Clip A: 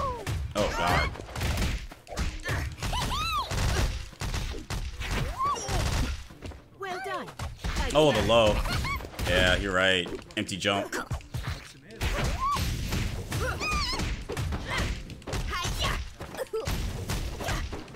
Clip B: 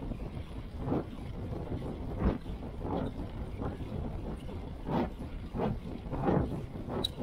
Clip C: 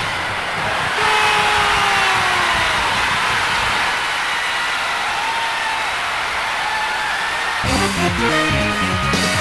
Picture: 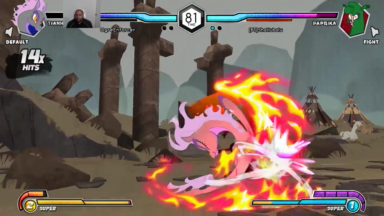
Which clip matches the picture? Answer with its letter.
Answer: A